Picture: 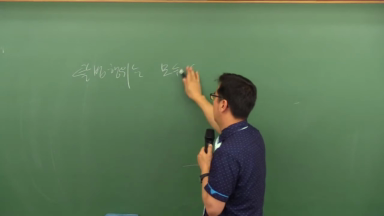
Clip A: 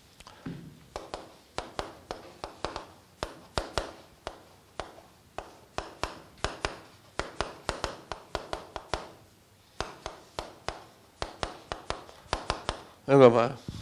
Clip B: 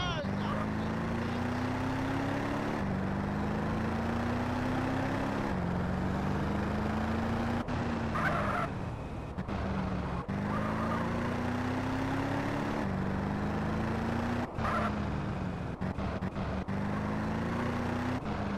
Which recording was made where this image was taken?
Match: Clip A